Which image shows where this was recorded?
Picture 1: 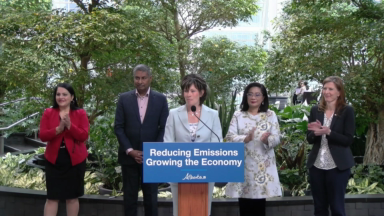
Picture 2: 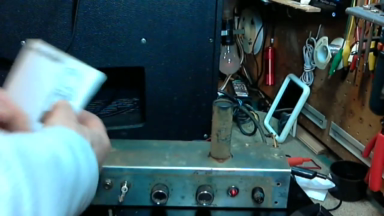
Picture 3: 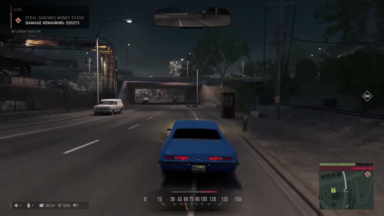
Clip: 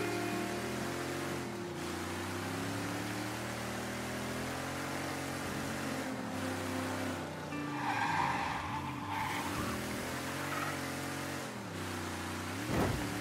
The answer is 3